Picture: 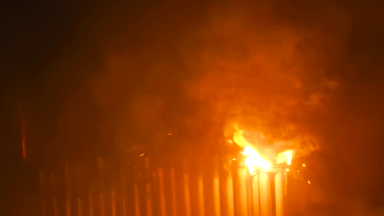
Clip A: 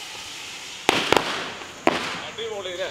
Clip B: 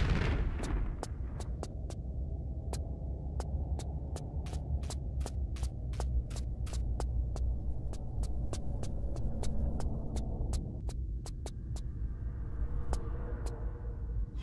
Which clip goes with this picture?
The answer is A